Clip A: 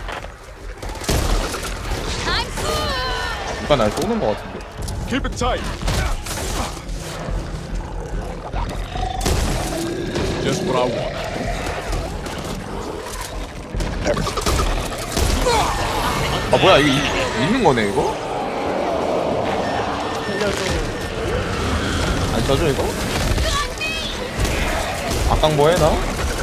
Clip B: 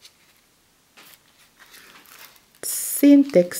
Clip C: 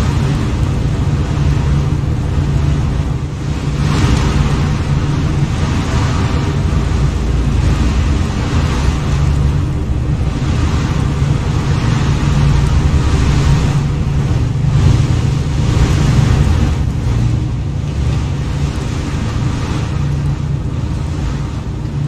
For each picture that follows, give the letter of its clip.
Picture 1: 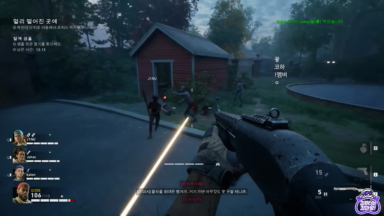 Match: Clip A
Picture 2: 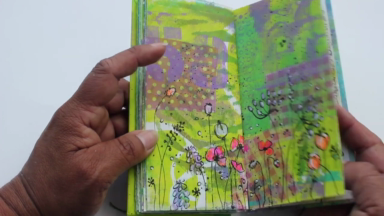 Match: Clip B